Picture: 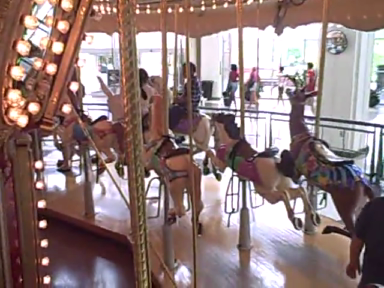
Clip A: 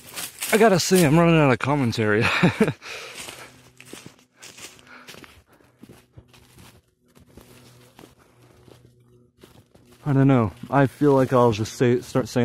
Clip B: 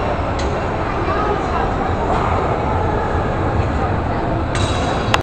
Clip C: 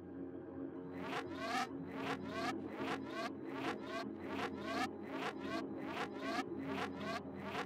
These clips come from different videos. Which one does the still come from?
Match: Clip B